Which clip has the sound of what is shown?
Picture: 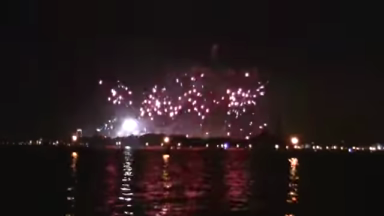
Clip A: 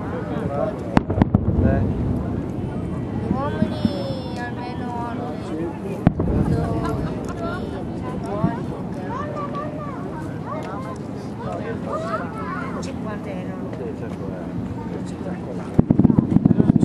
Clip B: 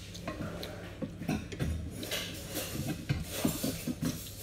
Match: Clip A